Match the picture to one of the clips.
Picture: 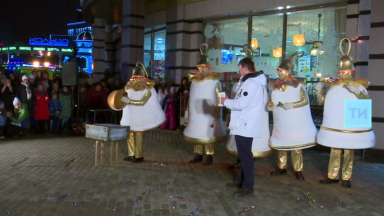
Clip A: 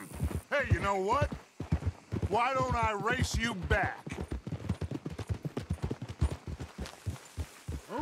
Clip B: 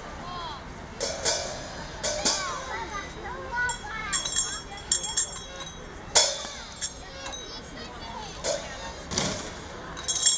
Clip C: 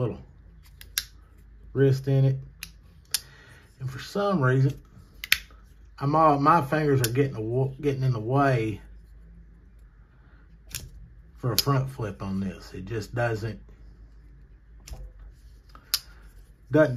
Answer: B